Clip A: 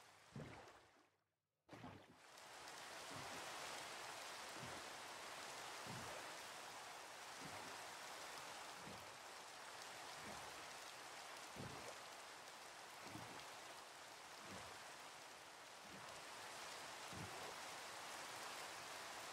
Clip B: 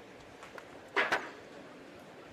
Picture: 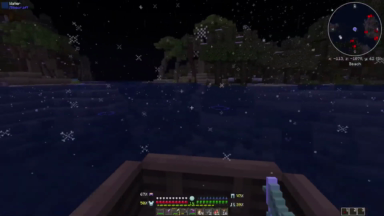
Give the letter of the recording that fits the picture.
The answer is A